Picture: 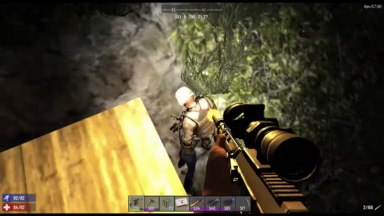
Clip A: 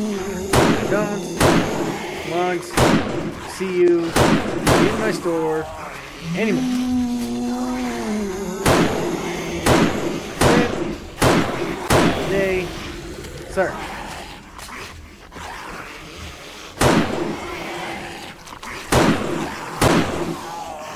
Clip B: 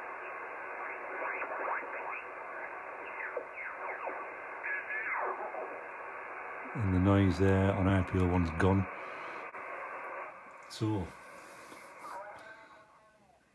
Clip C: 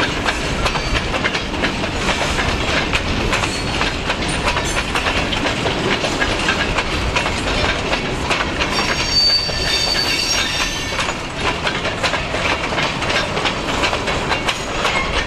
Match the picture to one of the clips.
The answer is A